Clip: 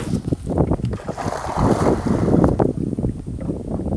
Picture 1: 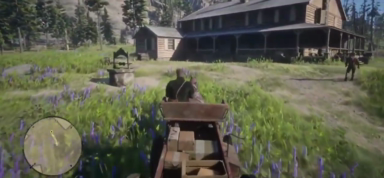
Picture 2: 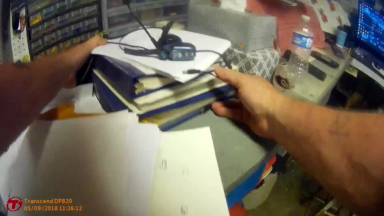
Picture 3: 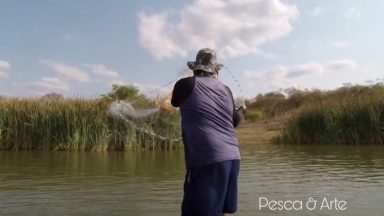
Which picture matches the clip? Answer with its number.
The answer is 3